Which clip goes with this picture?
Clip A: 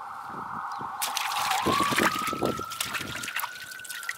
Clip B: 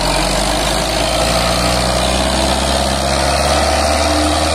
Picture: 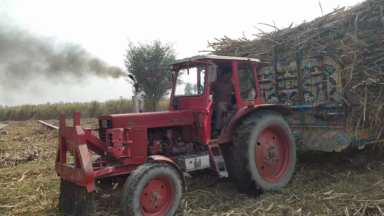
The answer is B